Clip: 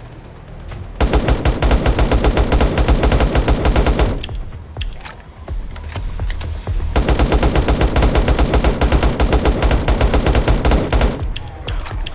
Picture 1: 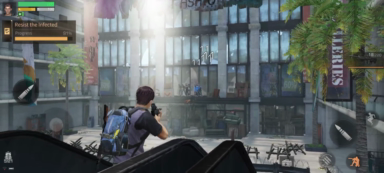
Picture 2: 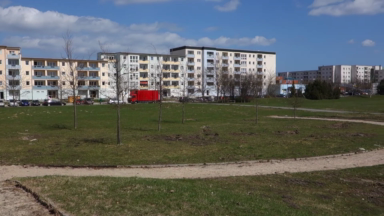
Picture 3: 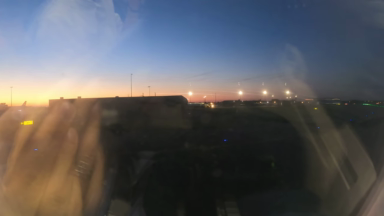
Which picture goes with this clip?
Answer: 1